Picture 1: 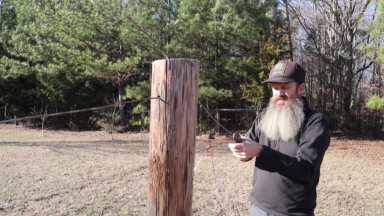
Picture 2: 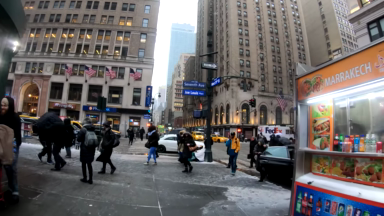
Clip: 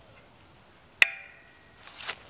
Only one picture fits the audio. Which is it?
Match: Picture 1